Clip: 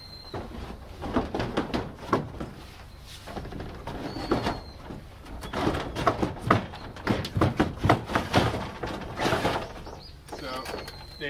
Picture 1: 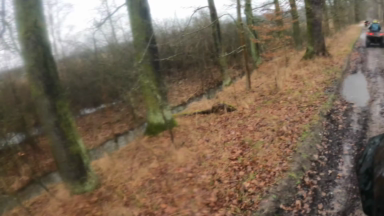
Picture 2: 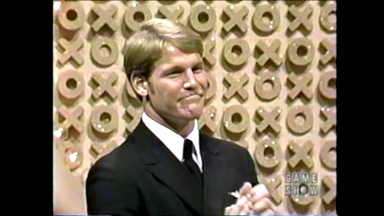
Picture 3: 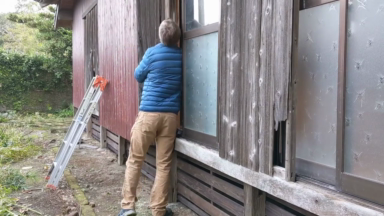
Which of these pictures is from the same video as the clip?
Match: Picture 3